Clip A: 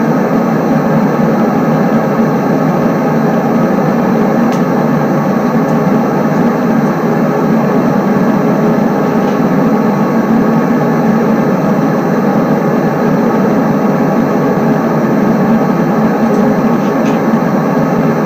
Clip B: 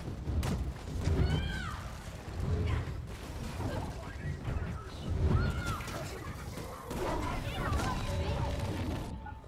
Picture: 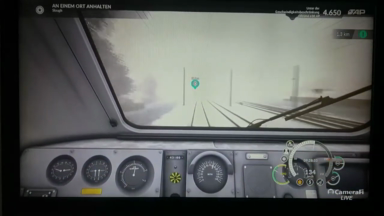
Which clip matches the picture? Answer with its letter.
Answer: A